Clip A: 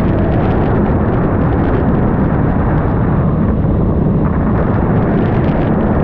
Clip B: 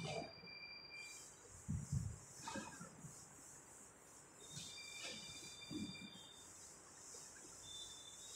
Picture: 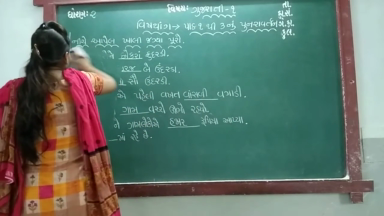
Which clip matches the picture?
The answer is B